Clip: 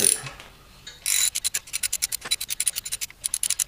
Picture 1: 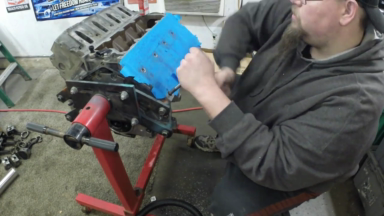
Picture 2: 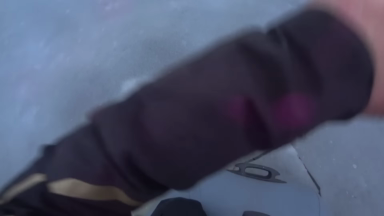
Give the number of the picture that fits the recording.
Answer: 1